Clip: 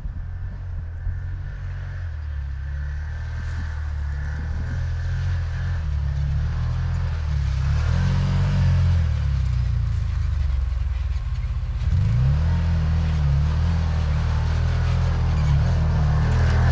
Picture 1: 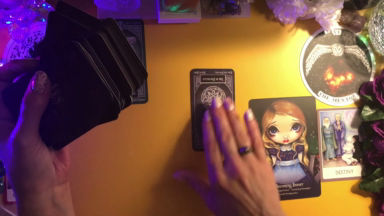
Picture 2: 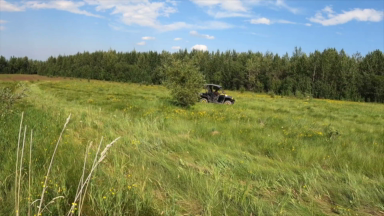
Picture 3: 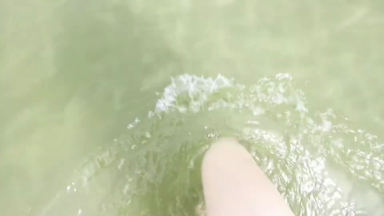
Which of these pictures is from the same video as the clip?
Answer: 2